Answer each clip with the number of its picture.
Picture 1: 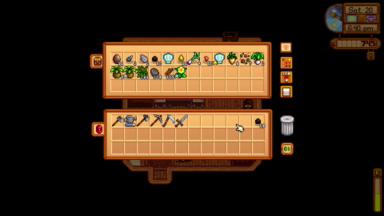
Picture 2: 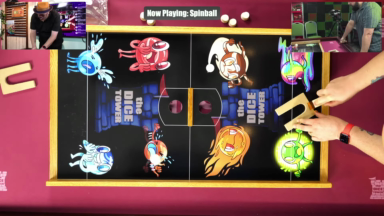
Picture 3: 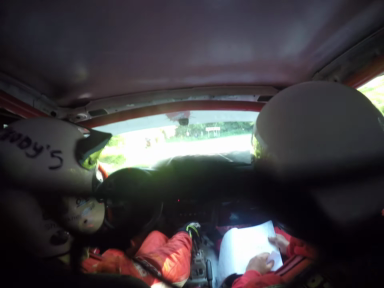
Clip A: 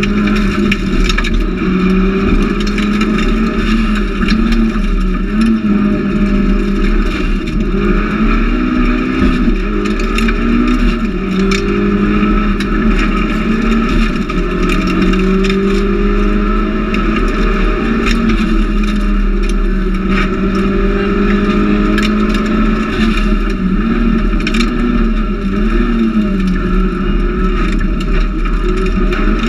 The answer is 3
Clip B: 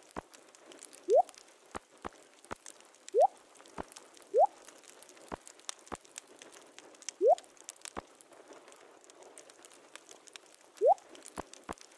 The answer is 1